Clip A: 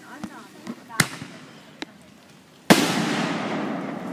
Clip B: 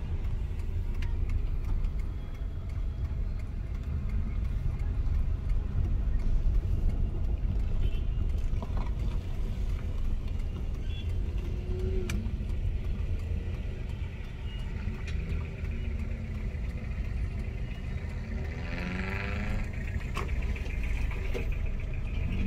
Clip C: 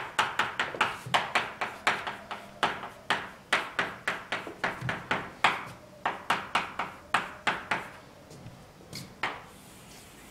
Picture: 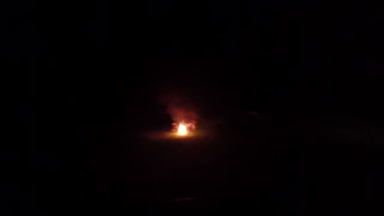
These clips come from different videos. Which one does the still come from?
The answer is A